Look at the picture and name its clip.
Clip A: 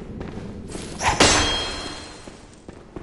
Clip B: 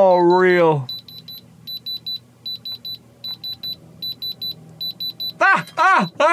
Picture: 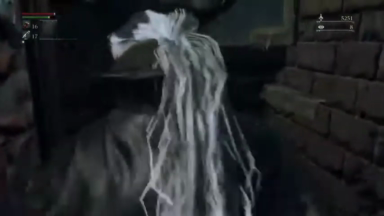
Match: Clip A